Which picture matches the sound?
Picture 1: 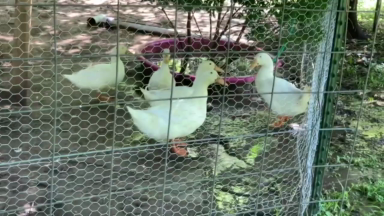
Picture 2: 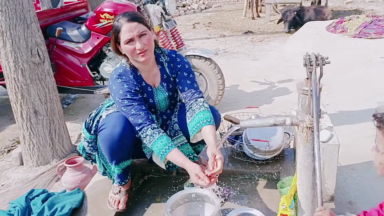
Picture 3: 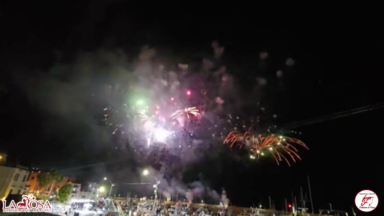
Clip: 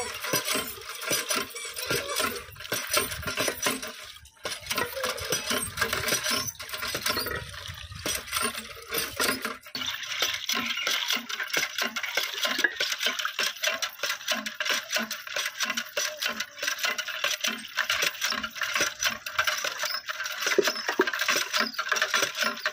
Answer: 2